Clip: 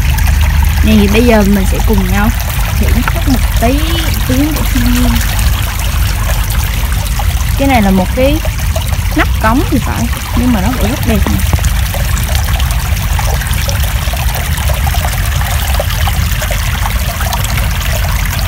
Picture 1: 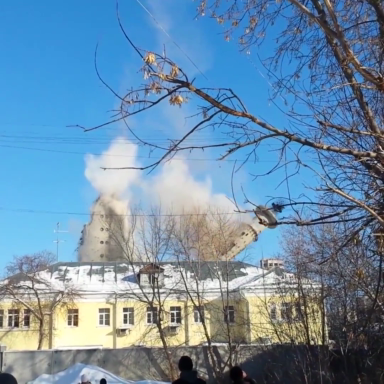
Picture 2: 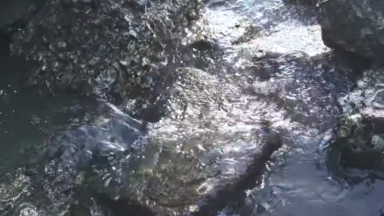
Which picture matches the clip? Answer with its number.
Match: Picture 2